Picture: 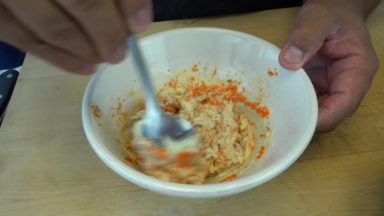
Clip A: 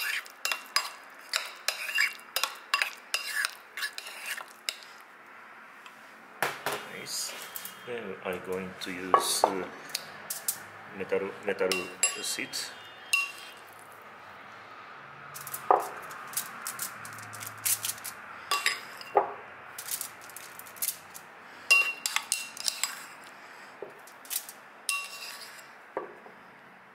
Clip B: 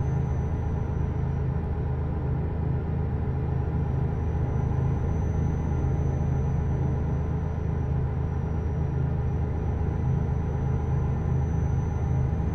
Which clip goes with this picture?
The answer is A